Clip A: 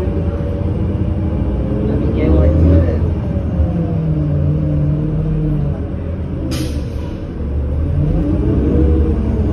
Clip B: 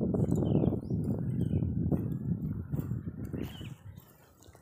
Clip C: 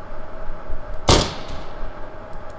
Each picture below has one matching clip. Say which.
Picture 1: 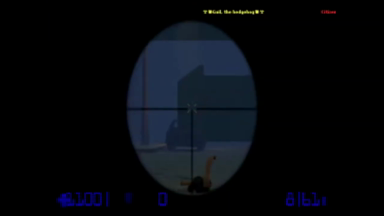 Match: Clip C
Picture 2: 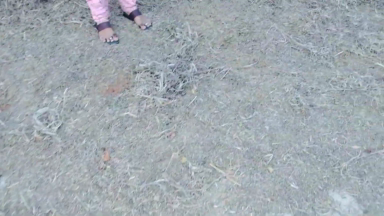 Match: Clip B